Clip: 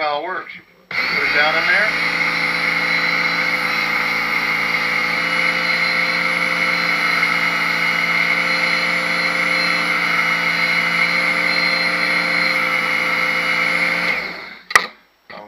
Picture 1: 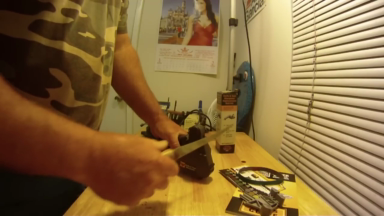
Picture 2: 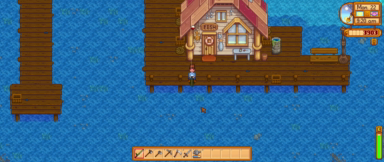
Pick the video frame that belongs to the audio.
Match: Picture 1